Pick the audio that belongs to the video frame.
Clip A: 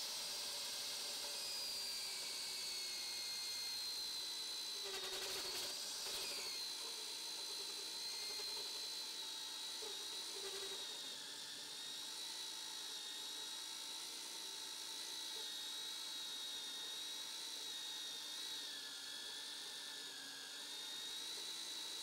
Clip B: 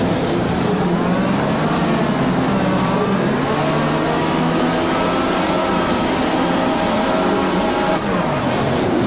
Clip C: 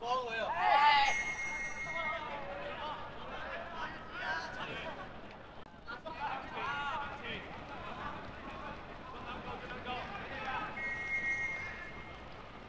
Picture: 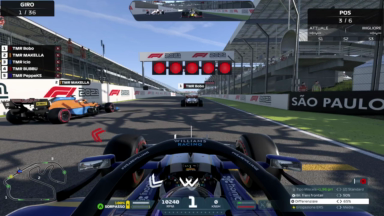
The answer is B